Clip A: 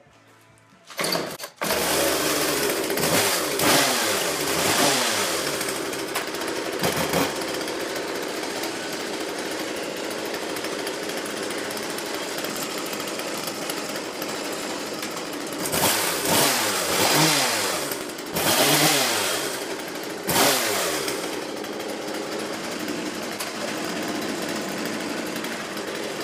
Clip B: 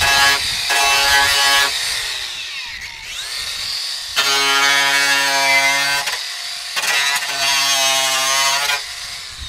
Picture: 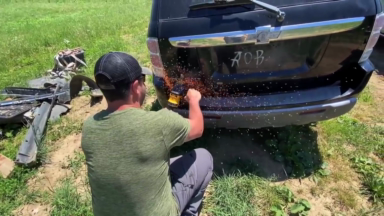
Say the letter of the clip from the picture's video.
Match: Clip B